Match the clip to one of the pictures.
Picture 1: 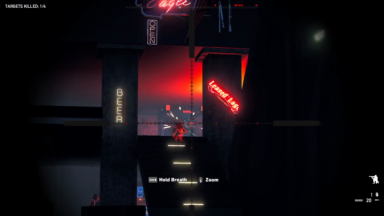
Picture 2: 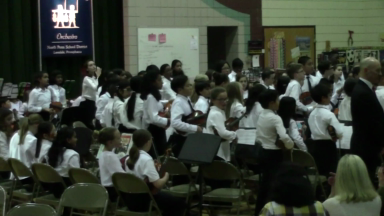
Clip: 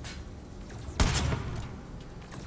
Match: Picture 1